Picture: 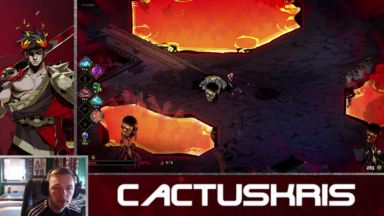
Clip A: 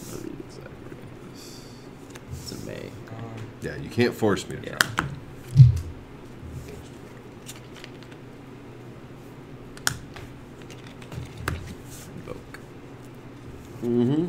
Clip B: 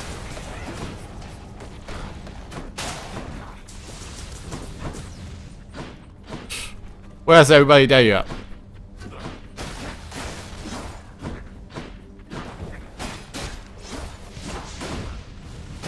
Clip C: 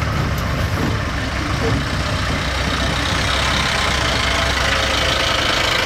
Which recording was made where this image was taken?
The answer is B